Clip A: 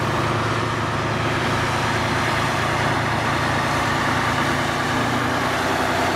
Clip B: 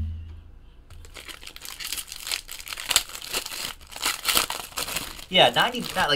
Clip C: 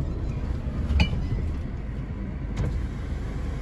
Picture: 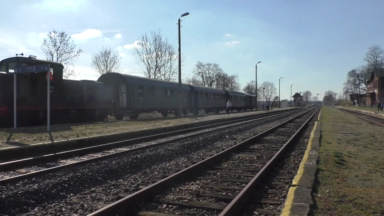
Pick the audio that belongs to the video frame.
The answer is A